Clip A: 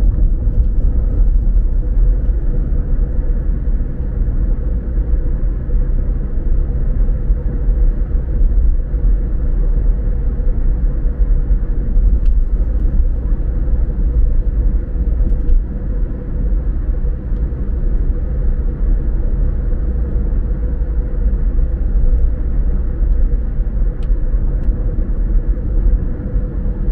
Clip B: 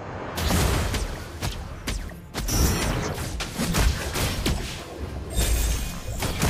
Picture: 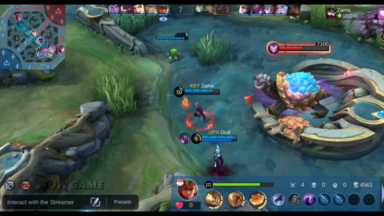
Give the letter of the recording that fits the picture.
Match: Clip B